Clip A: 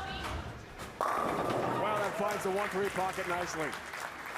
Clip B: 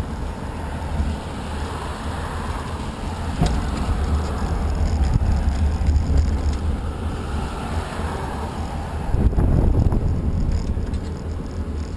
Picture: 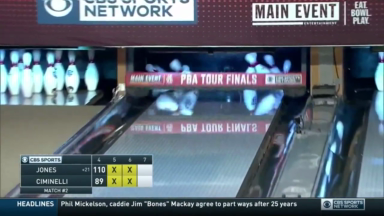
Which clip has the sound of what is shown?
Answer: A